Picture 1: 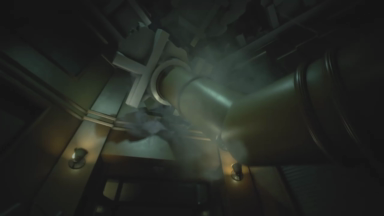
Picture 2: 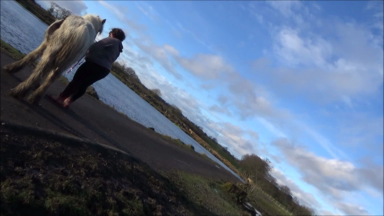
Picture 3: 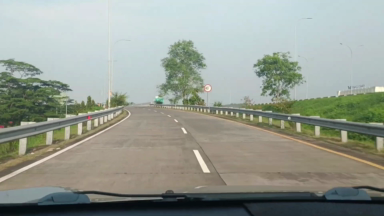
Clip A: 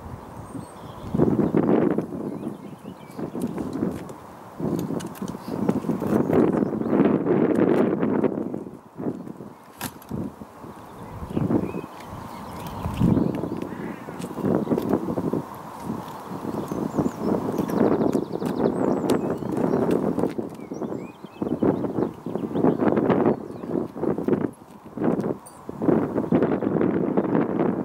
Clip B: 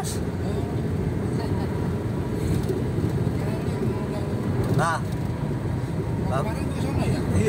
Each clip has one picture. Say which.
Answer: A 2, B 3